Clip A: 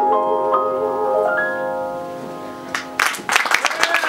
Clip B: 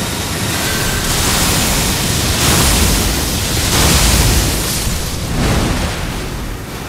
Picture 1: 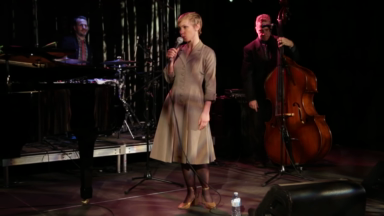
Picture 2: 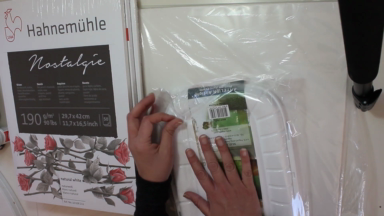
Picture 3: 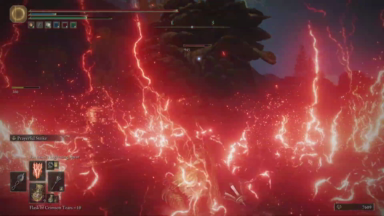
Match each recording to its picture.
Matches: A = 1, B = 3